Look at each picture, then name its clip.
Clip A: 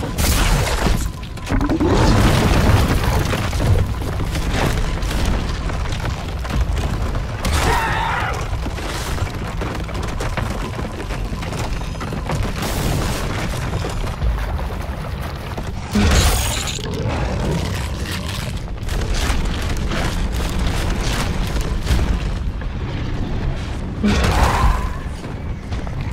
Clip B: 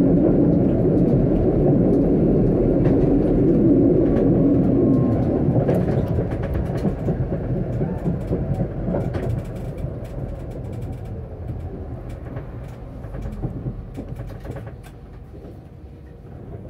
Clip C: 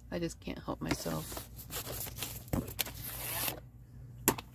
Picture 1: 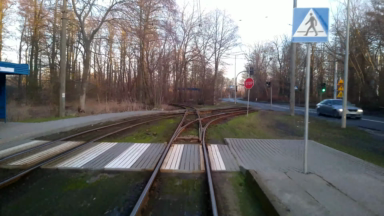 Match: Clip B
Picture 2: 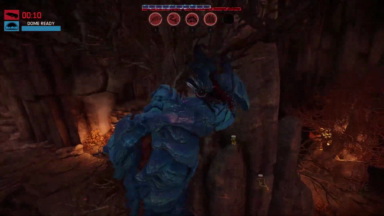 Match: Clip A